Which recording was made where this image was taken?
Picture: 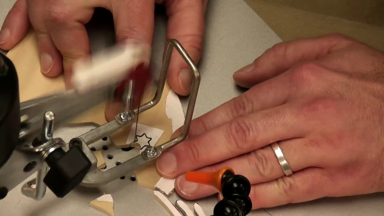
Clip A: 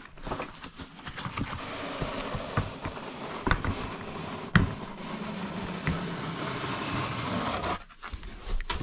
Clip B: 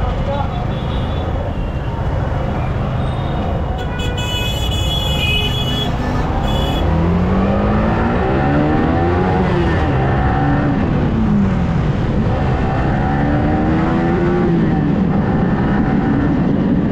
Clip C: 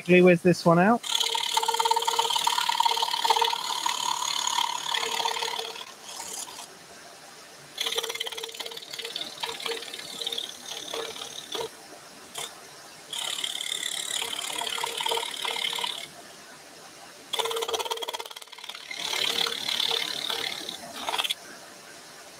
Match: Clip C